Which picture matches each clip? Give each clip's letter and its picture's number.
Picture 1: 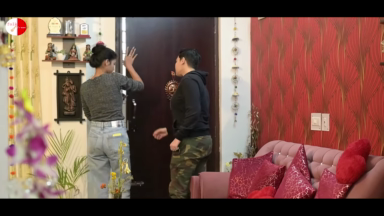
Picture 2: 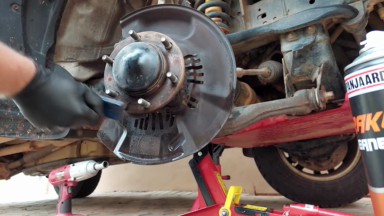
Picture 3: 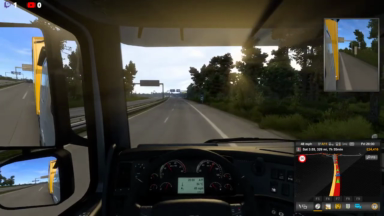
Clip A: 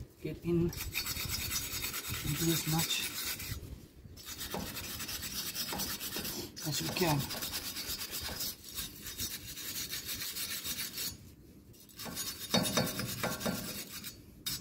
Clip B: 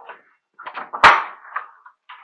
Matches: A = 2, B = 1